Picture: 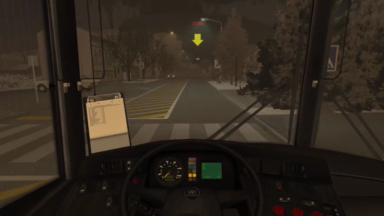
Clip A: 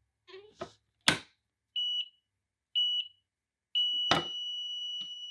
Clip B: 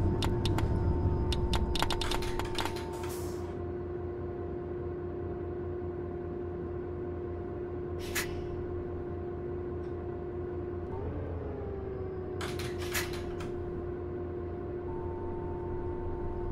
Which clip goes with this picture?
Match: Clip B